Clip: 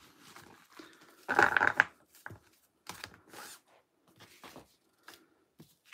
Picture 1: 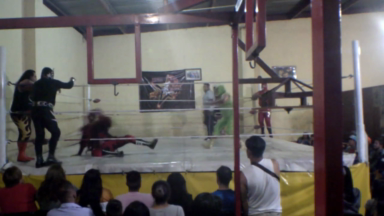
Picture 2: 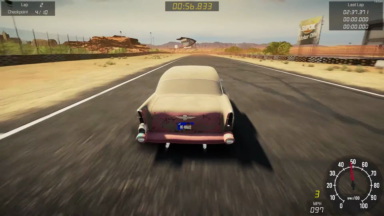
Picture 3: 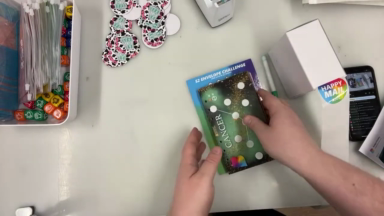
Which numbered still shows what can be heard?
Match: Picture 3